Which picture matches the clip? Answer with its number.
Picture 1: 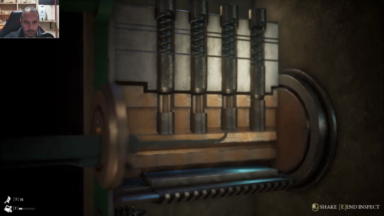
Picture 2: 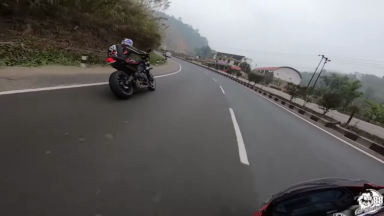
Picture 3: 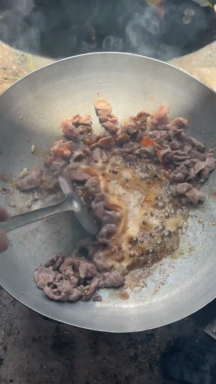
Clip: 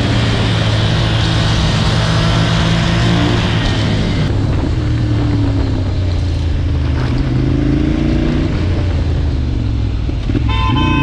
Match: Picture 2